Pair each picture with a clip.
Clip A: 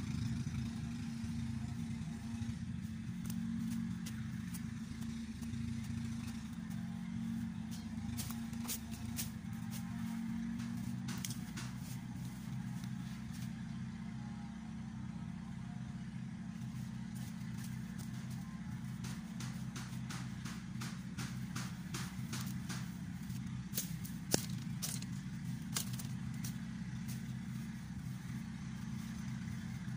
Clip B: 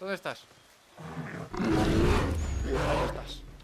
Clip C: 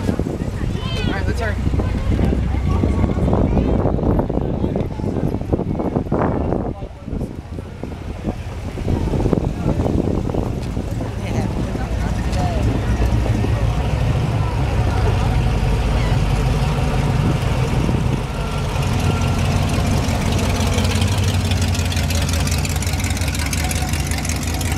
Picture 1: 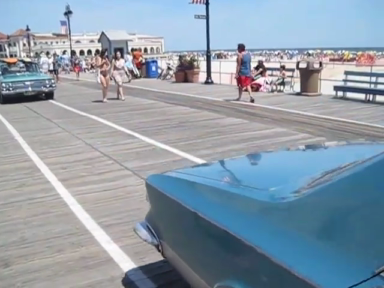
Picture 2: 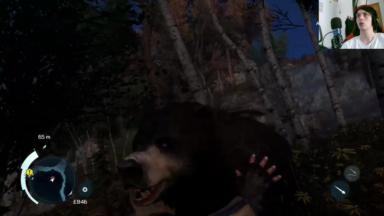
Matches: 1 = C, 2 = B